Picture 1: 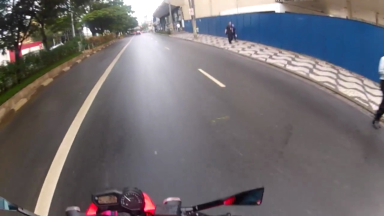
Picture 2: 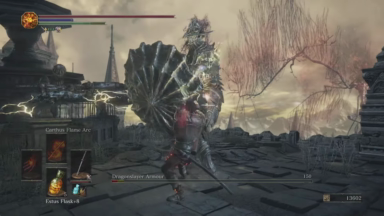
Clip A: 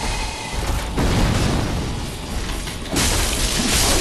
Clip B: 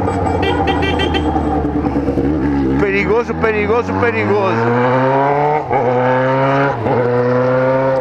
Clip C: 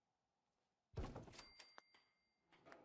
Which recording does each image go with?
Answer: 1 B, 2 A